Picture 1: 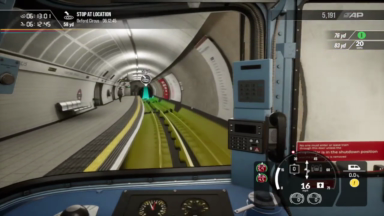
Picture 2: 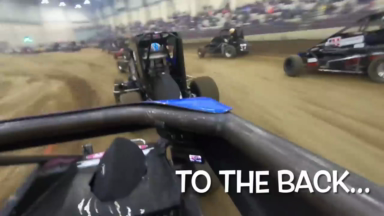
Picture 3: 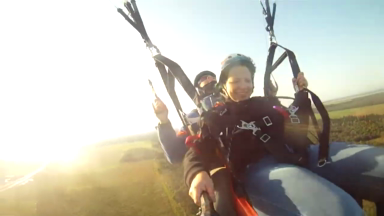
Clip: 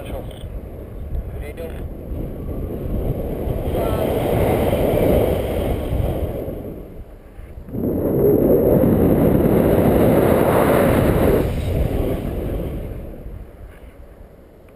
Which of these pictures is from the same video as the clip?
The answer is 3